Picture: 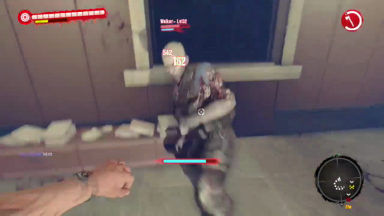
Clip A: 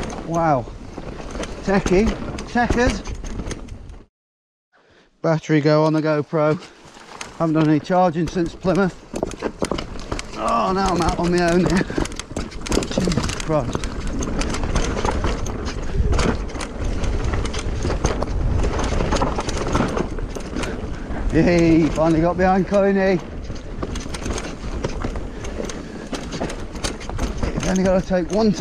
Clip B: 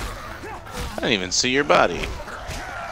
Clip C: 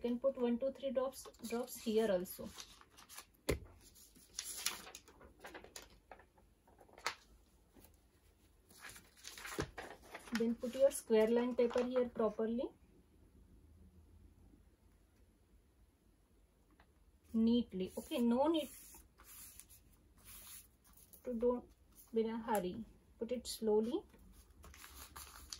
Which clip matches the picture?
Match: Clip B